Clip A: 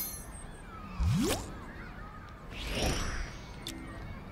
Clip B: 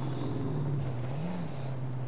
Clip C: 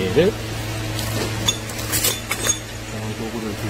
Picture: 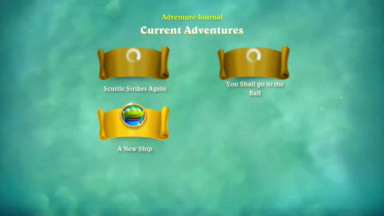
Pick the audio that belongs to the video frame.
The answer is A